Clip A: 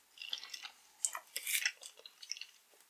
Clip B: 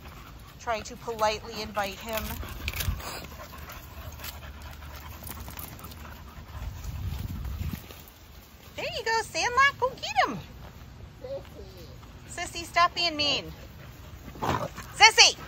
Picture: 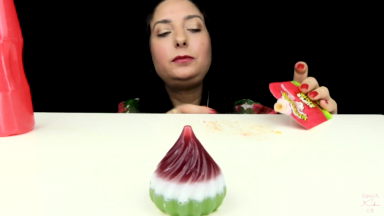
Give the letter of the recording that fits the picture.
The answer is A